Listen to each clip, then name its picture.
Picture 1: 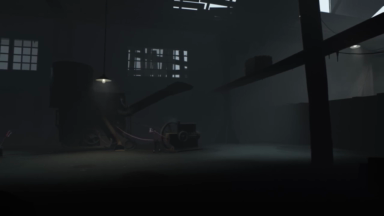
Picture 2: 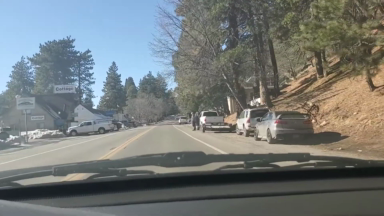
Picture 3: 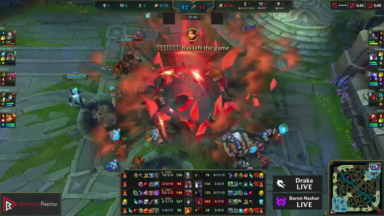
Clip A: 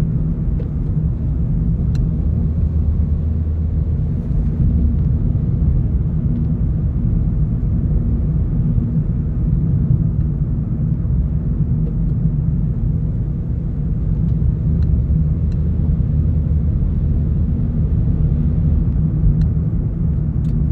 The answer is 2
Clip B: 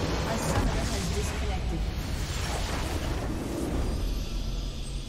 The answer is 3